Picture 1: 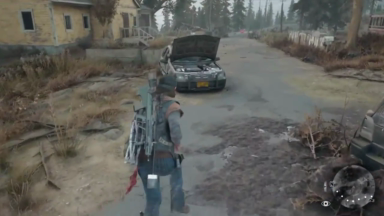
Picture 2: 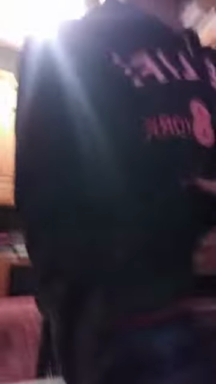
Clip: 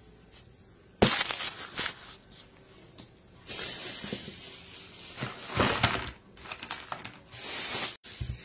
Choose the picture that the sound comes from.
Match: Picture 2